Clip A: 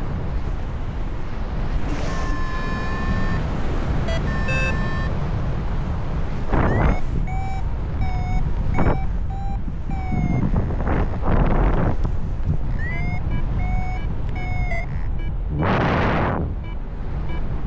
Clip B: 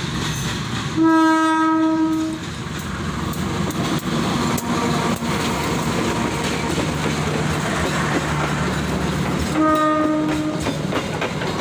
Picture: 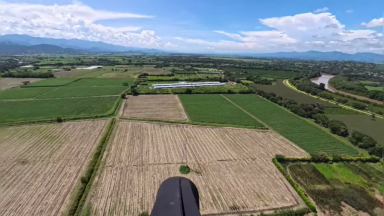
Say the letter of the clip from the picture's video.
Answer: A